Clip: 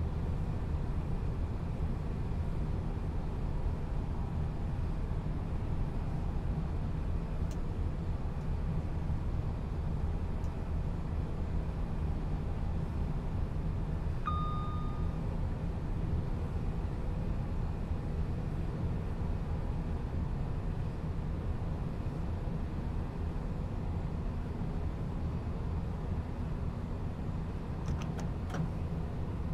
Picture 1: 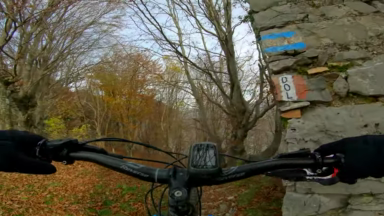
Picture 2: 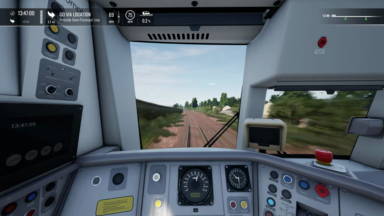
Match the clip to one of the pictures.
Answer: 2